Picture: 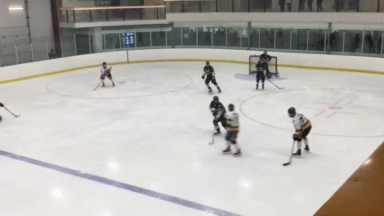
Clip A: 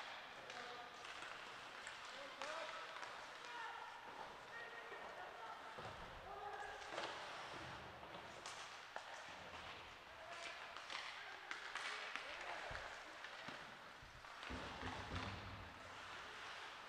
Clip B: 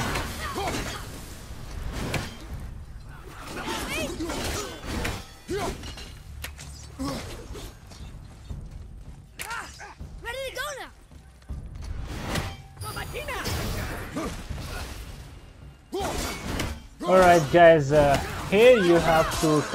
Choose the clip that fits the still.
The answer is A